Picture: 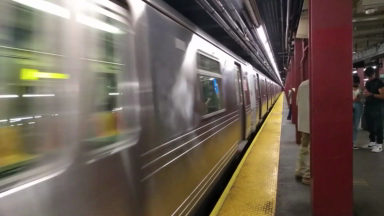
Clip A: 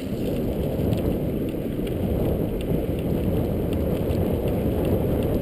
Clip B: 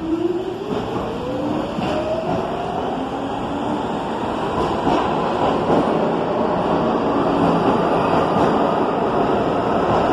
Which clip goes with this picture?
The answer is B